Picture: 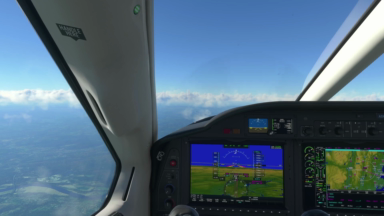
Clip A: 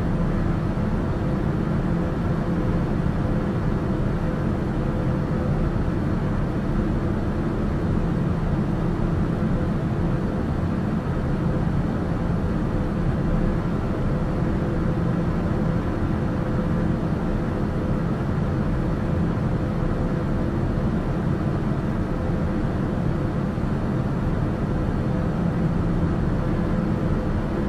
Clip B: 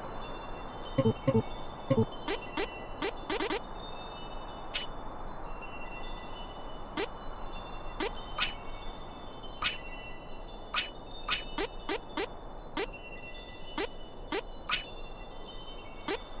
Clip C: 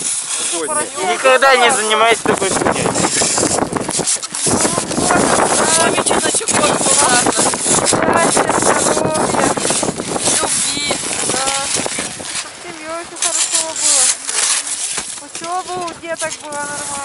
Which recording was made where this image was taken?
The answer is A